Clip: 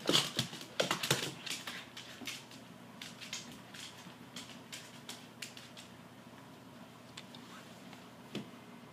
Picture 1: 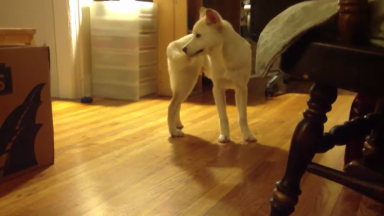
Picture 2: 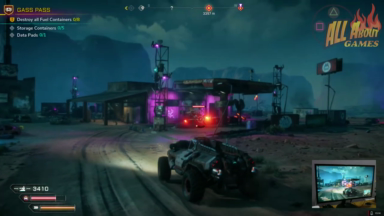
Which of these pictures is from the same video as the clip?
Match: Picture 1